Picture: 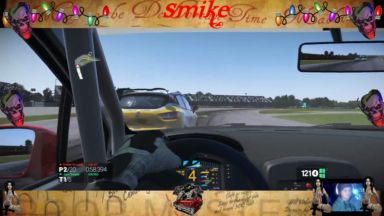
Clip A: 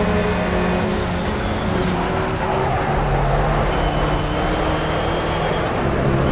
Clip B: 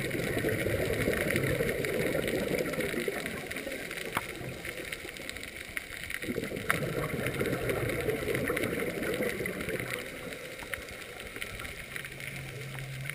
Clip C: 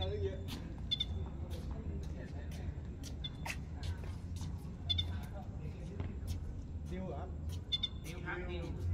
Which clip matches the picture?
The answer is A